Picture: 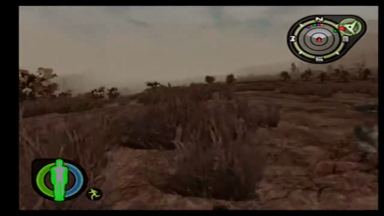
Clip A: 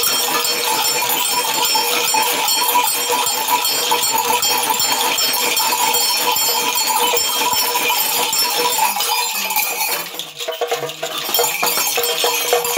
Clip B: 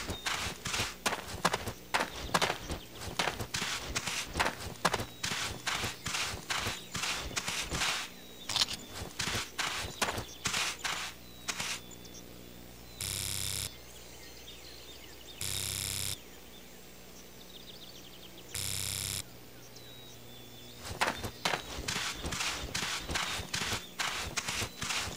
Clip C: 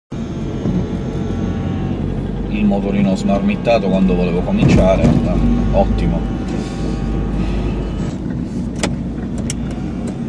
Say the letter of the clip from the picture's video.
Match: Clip B